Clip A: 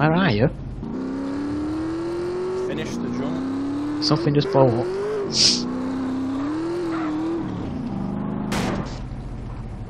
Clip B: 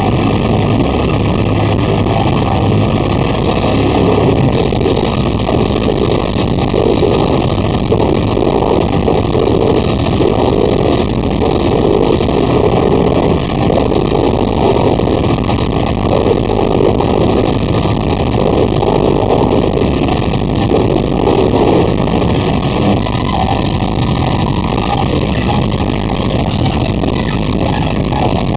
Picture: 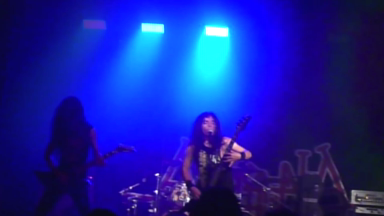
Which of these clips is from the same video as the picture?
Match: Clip B